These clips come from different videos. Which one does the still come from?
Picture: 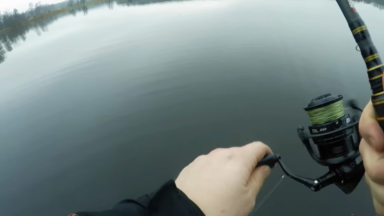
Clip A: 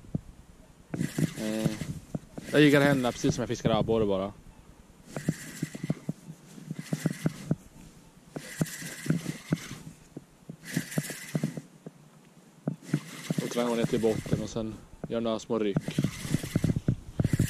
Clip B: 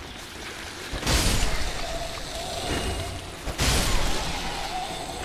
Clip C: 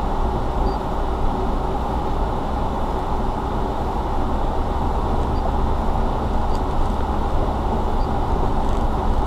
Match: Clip A